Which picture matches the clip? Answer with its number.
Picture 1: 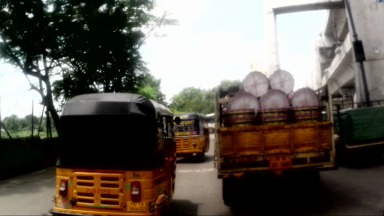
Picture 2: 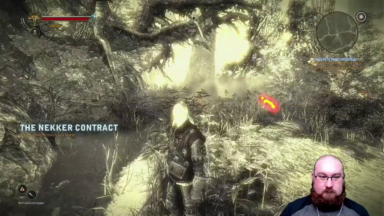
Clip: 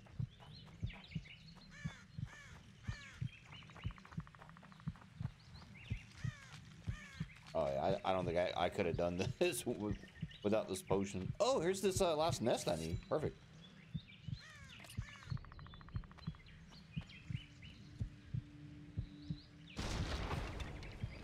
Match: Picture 2